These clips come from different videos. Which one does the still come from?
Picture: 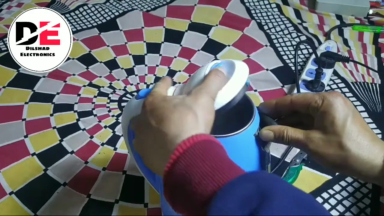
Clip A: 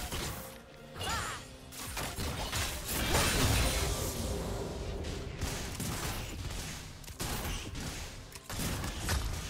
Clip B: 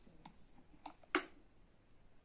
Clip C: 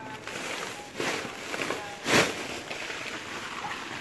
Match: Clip B